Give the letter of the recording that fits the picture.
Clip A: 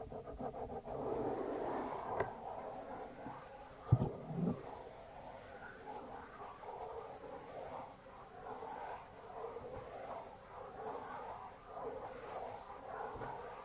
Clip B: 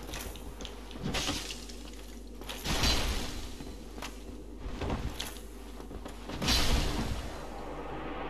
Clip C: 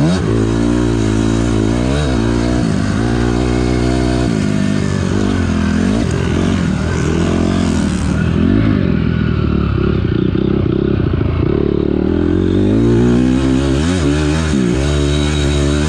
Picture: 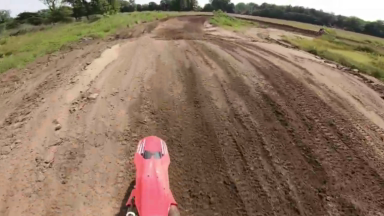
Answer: C